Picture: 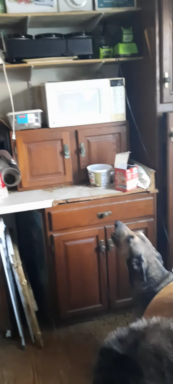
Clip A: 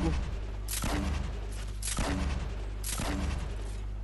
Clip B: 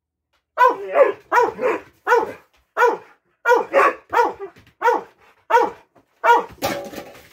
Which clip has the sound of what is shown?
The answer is B